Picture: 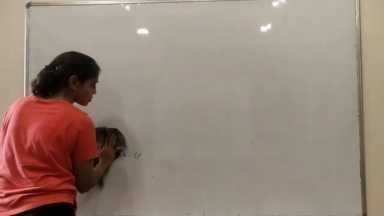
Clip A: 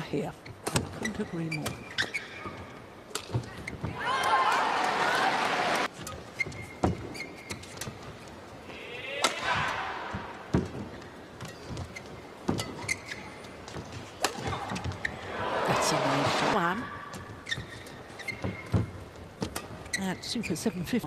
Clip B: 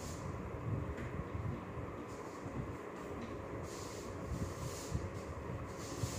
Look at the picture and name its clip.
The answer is B